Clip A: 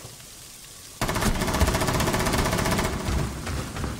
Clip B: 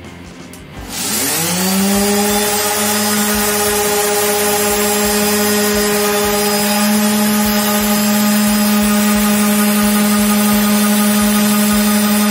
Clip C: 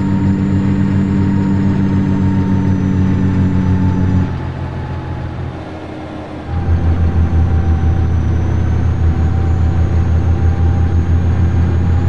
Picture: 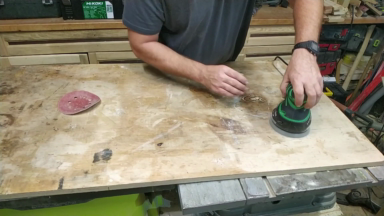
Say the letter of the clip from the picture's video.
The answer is B